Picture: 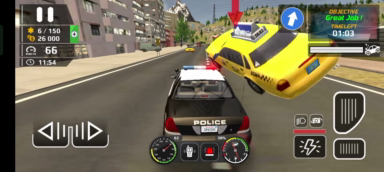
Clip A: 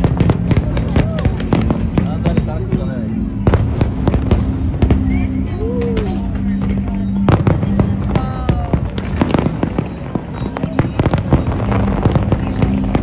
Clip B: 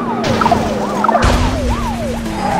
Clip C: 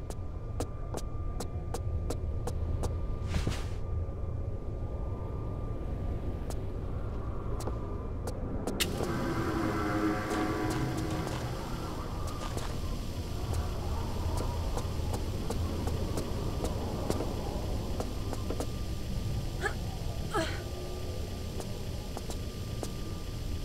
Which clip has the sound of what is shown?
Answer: B